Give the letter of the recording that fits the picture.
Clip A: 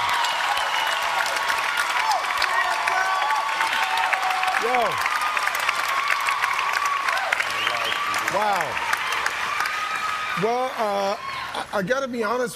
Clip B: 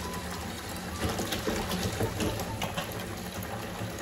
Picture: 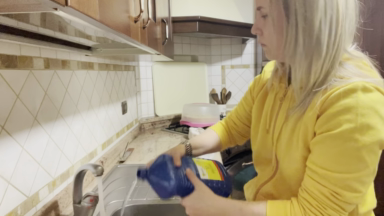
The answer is B